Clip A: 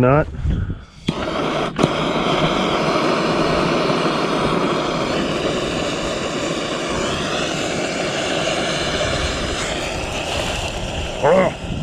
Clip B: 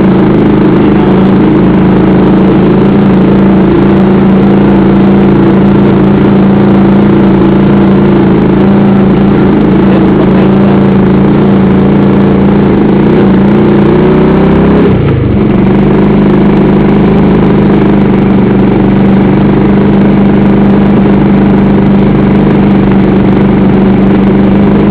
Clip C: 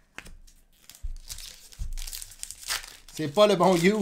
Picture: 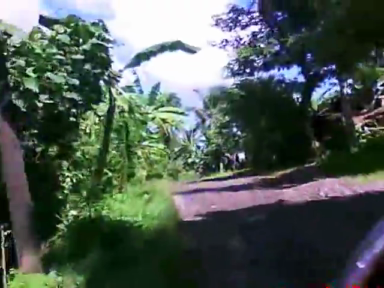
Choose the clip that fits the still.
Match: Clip B